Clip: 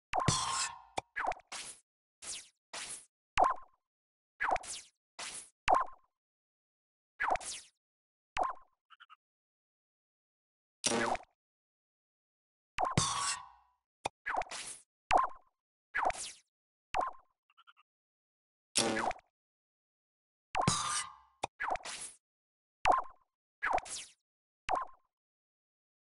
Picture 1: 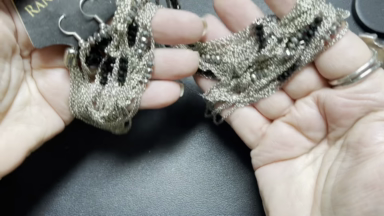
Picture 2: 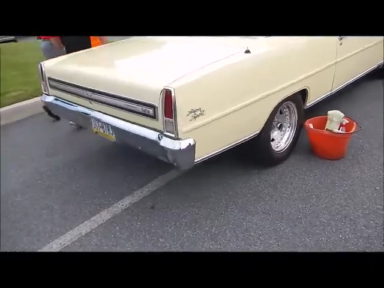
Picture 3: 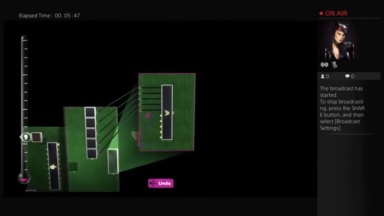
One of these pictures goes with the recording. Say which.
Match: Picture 3